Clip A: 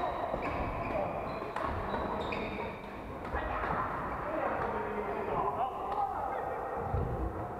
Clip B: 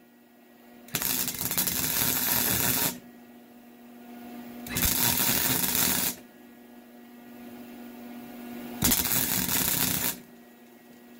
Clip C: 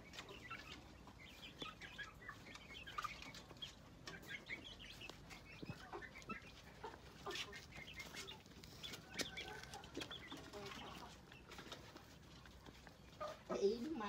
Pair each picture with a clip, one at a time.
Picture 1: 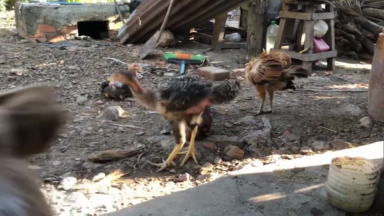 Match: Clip C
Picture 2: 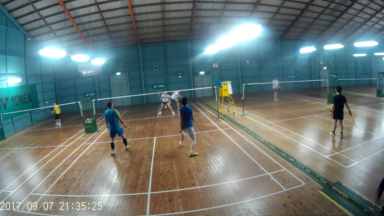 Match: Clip A